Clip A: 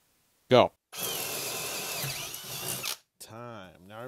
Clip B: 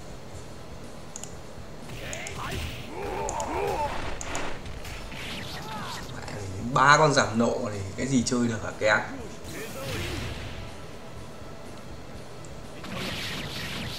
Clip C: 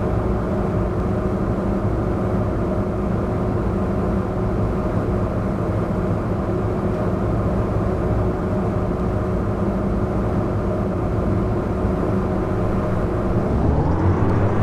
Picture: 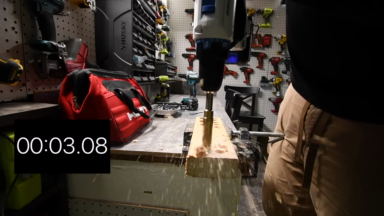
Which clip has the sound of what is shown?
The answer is A